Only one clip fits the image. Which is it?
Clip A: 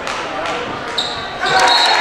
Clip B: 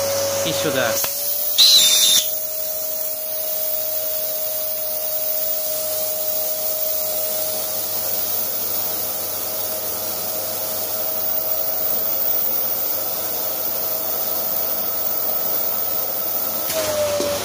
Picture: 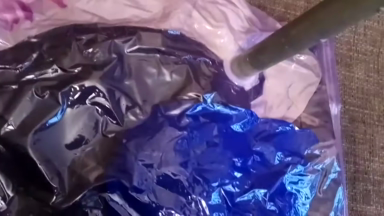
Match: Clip B